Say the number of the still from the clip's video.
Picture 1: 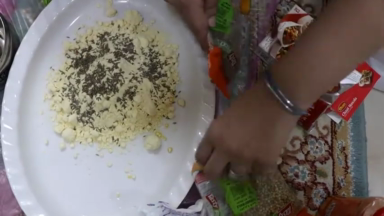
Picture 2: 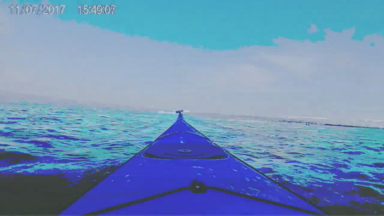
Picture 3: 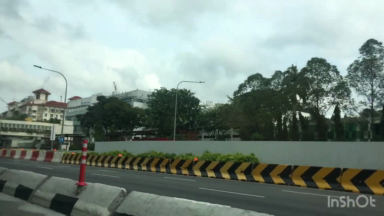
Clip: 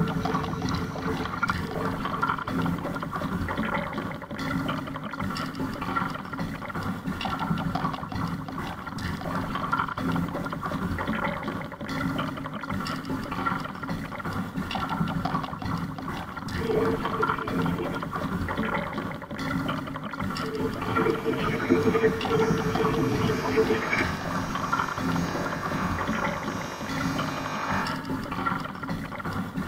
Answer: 2